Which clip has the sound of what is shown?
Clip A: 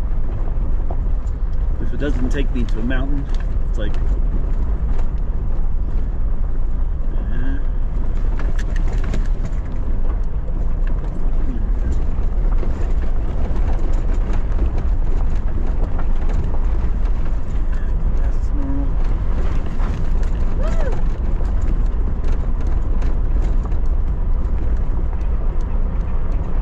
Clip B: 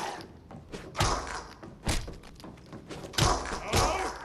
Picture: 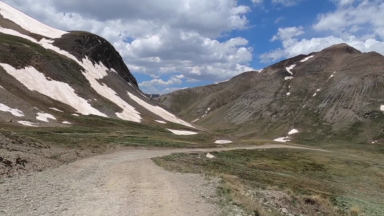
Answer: A